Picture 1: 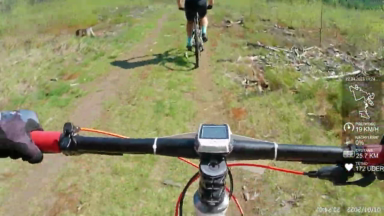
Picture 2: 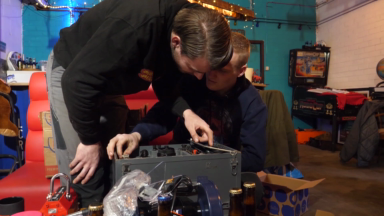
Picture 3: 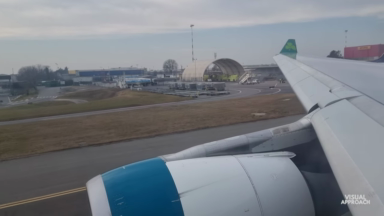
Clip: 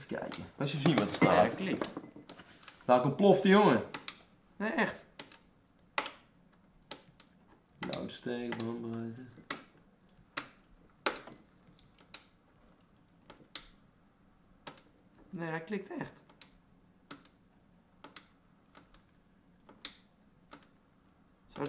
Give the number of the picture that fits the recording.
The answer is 2